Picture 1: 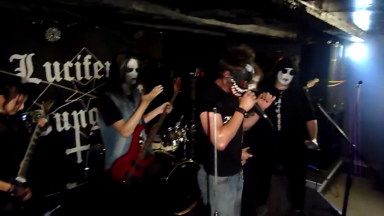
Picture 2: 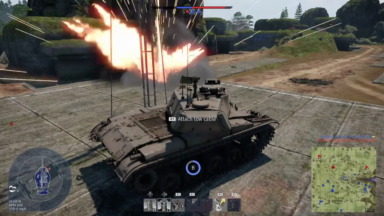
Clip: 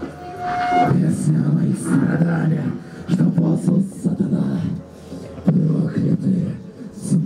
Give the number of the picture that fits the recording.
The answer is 1